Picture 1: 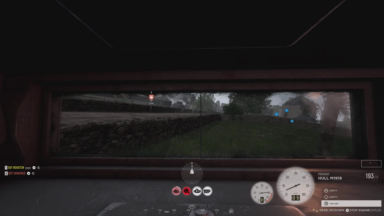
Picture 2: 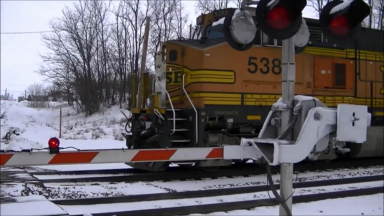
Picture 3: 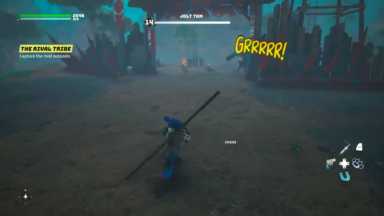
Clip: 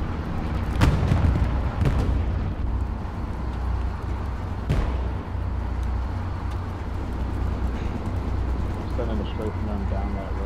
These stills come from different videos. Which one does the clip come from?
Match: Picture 1